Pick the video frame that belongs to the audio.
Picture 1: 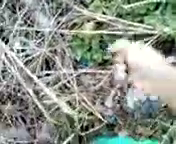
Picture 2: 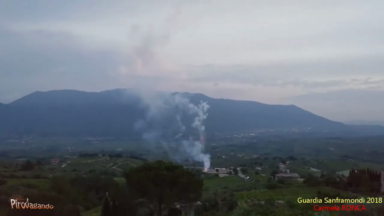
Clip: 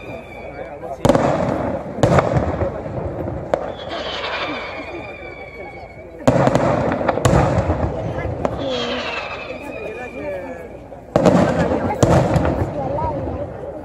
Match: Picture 2